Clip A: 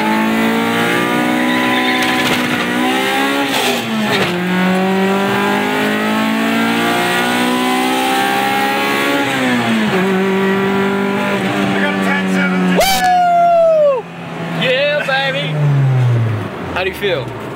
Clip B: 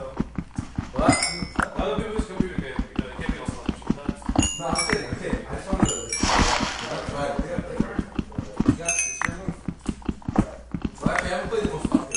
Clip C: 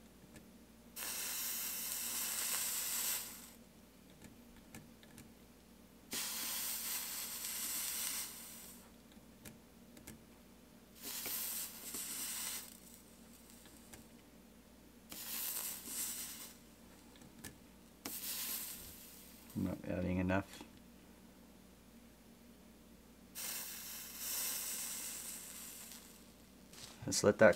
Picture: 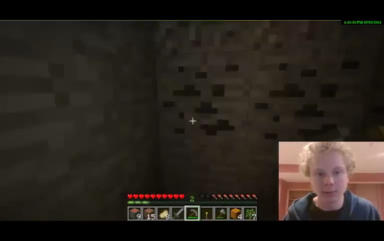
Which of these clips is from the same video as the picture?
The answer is B